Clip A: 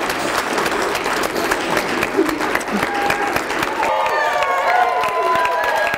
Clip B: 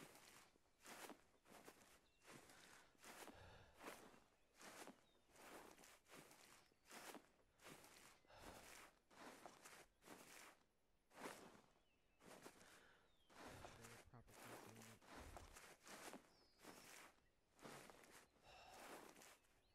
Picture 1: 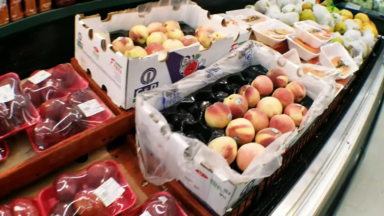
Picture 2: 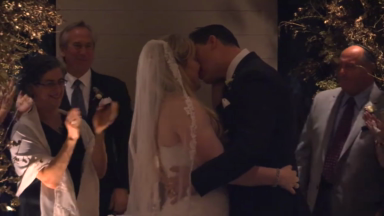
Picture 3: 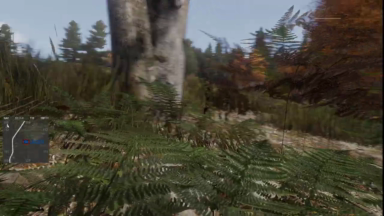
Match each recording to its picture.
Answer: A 2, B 3